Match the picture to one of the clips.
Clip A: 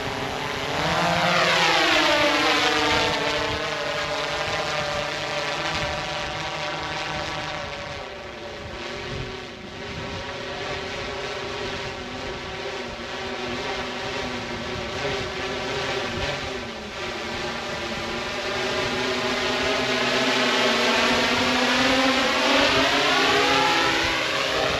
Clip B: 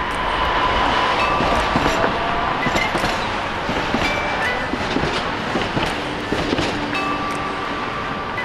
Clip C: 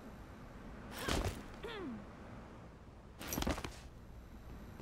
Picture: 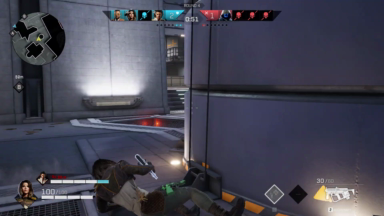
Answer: C